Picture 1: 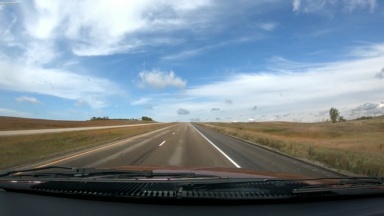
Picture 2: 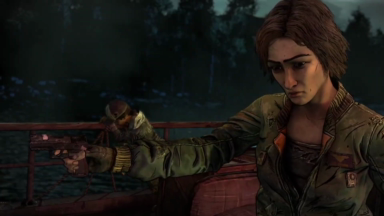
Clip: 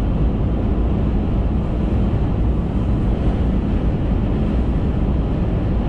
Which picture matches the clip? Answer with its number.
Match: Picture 1